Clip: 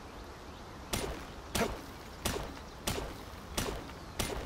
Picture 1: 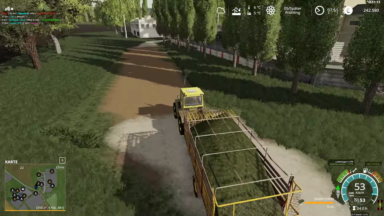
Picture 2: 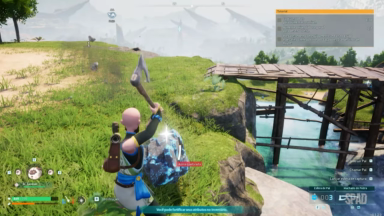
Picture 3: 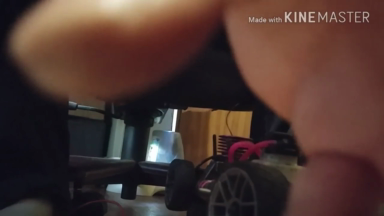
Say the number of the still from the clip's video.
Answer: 2